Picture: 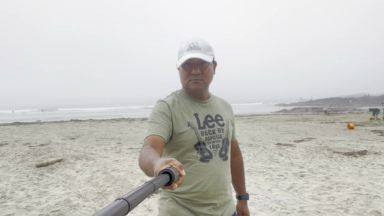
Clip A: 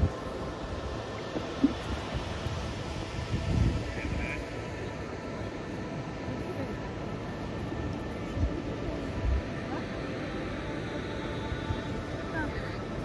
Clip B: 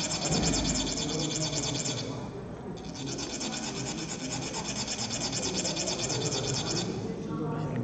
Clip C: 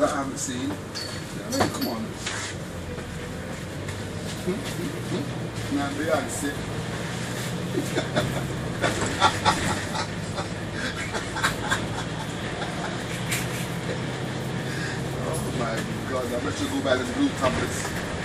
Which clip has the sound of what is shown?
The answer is A